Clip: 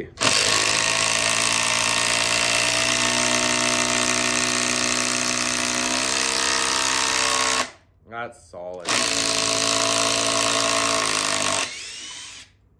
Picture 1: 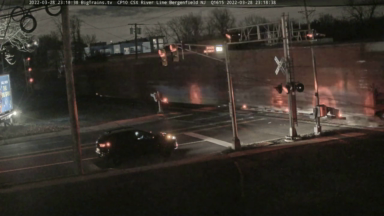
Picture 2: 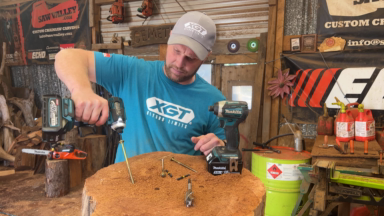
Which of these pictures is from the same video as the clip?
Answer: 2